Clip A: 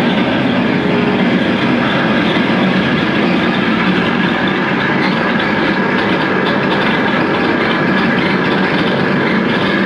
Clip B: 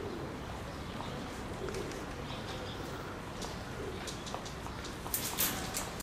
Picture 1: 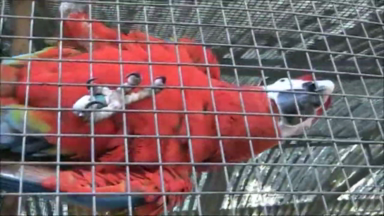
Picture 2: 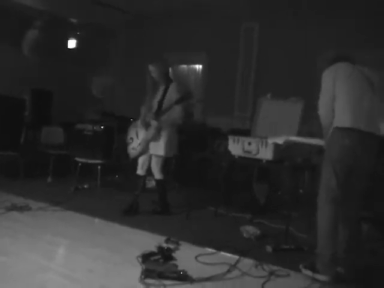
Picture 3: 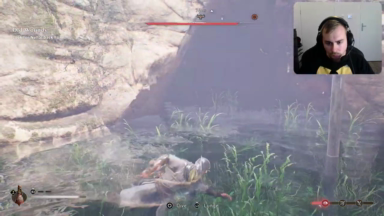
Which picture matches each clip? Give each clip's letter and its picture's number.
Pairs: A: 2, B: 1